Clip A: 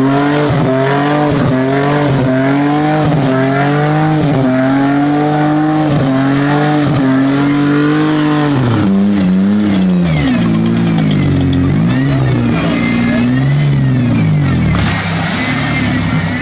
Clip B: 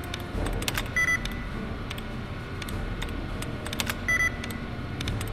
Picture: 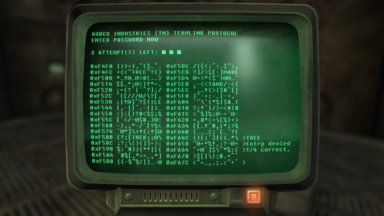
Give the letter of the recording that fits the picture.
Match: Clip B